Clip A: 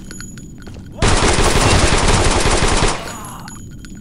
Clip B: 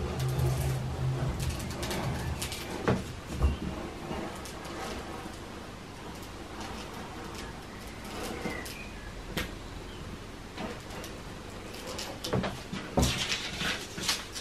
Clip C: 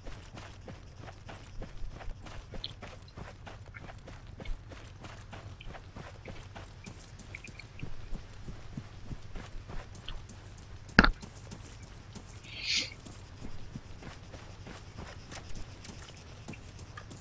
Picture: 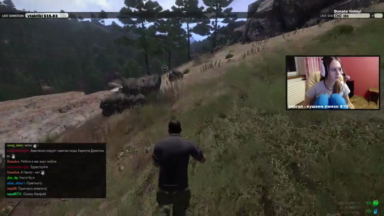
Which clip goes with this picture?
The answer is C